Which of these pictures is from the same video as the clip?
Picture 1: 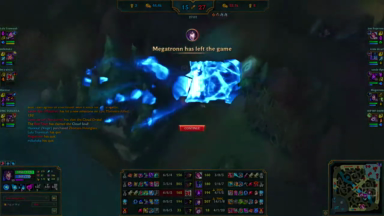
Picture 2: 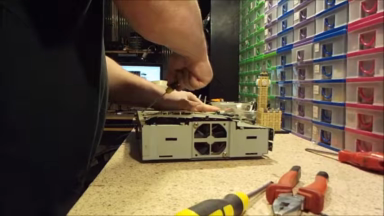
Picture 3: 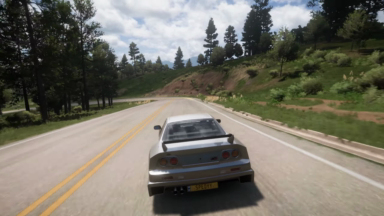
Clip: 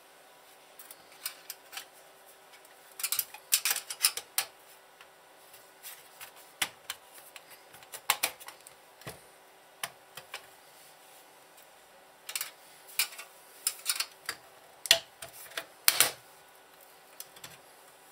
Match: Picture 2